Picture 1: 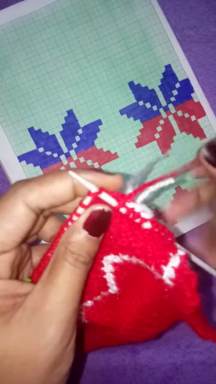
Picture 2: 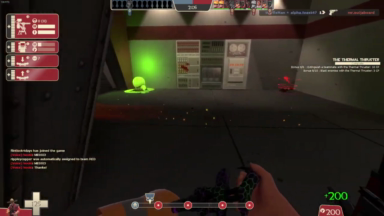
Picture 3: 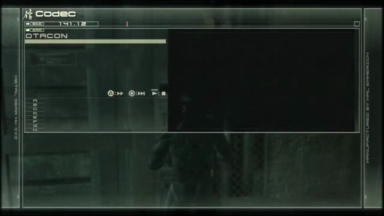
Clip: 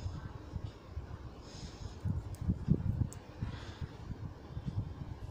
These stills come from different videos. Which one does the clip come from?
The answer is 1